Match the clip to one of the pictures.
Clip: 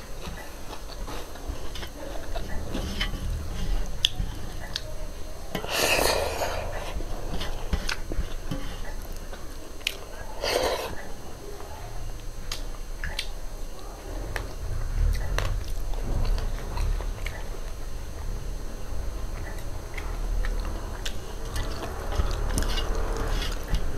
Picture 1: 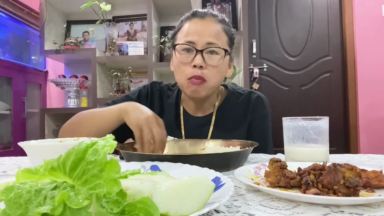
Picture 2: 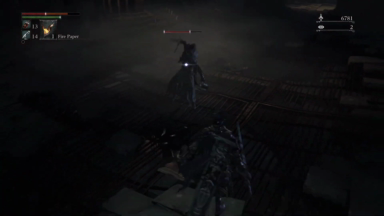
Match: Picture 1